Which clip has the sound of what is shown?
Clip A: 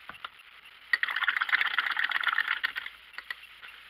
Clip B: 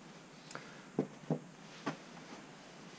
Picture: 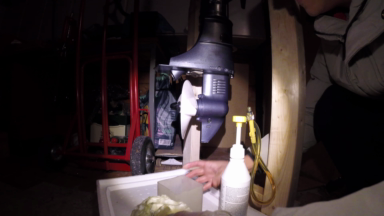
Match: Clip B